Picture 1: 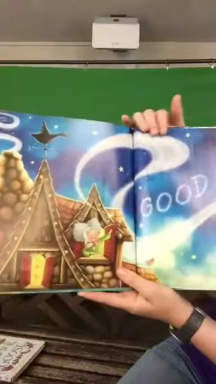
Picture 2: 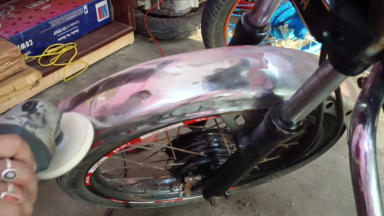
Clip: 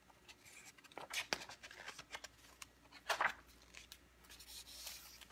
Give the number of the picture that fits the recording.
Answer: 1